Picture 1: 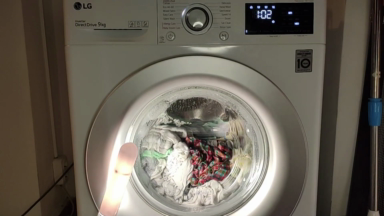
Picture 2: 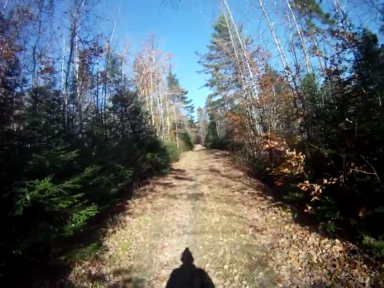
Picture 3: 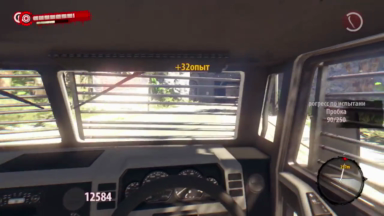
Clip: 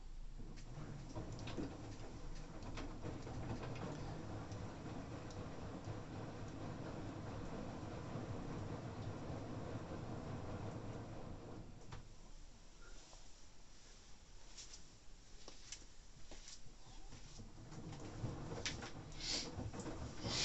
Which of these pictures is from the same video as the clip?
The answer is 1